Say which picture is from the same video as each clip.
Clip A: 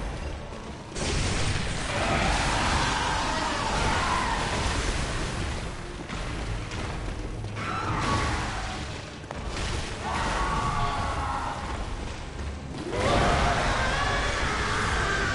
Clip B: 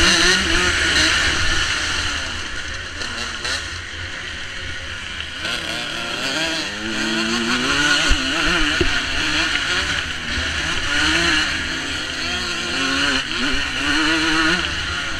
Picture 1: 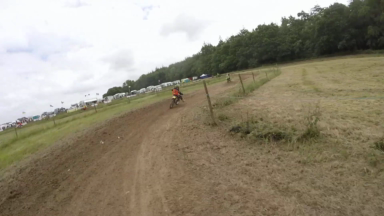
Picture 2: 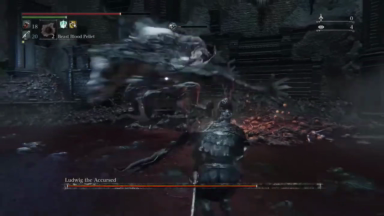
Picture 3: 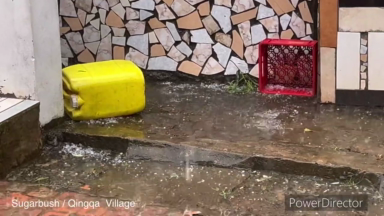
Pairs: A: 2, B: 1